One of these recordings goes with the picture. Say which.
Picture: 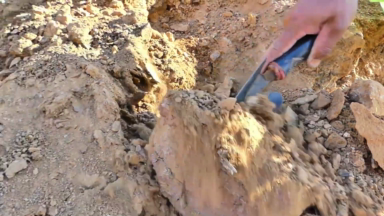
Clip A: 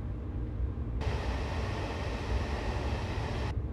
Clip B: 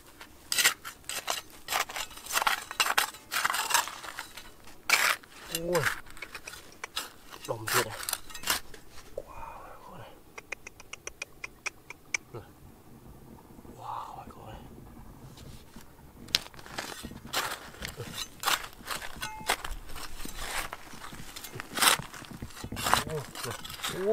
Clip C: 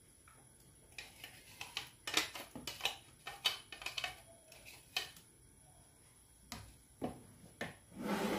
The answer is B